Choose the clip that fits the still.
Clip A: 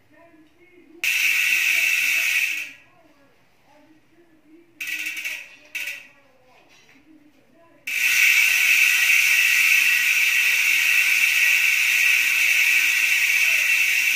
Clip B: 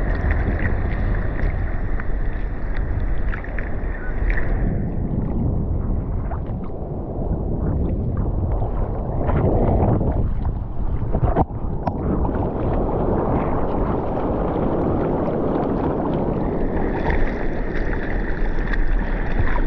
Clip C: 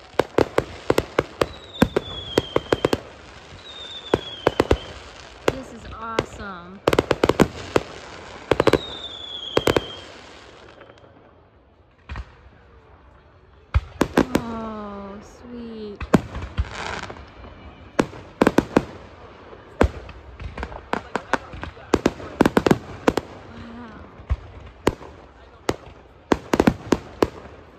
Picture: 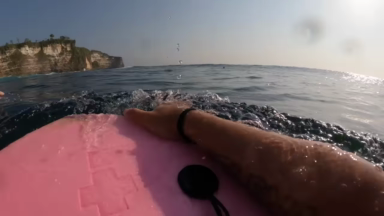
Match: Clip B